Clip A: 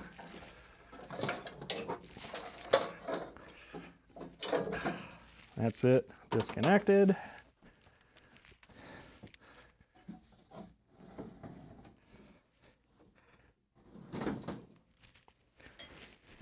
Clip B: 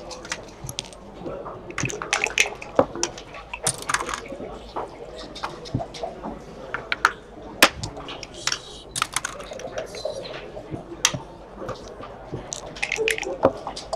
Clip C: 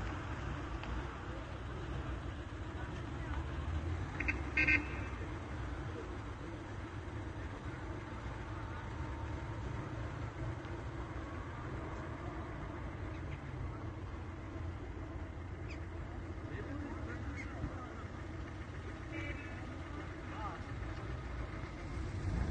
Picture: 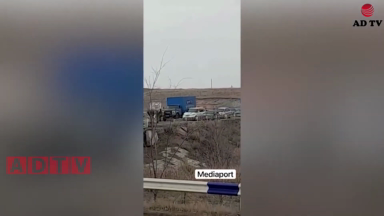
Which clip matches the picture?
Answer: C